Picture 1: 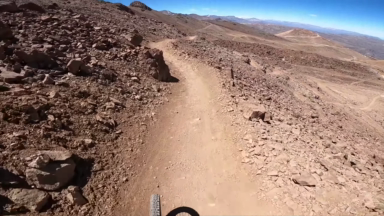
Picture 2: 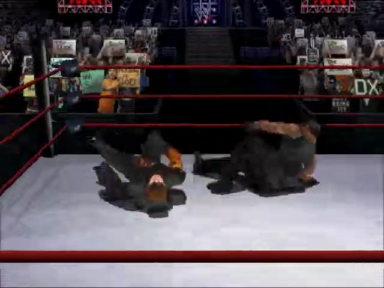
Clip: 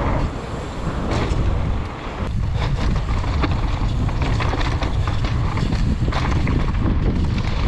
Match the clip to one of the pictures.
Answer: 1